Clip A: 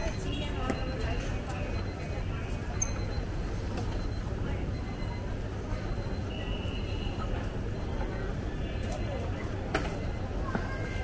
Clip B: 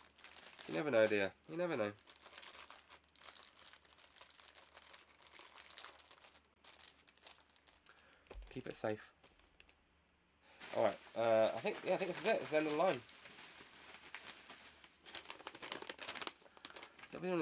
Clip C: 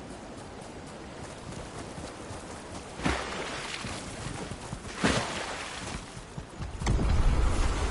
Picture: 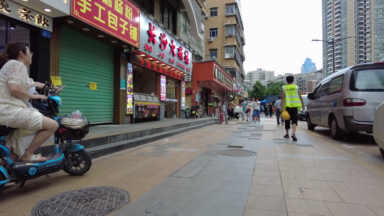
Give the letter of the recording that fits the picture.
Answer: A